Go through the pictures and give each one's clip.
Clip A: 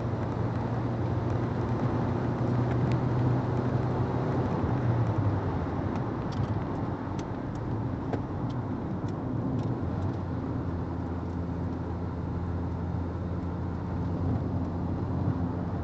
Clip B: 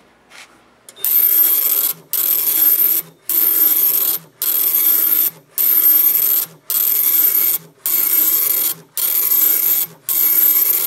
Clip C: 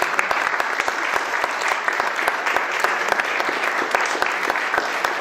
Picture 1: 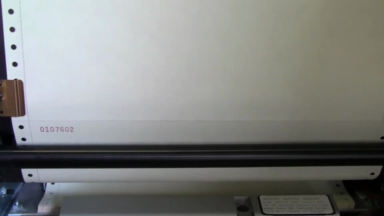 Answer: B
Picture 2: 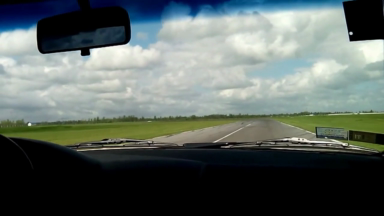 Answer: A